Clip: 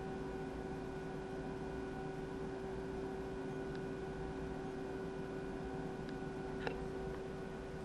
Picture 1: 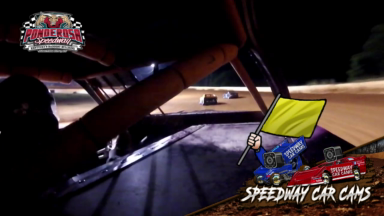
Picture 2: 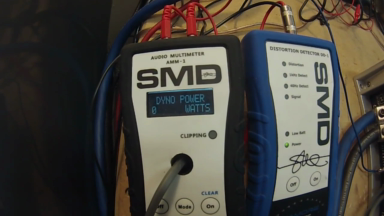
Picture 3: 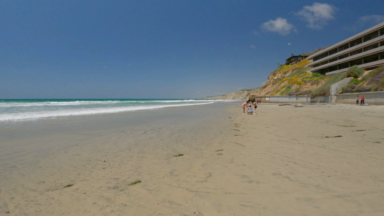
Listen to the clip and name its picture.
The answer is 2